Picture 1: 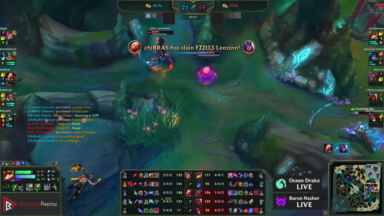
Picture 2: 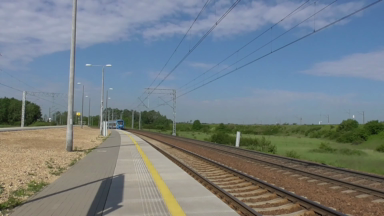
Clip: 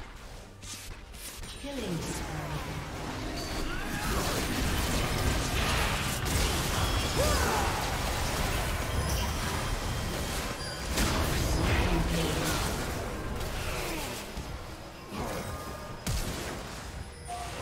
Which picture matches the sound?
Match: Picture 1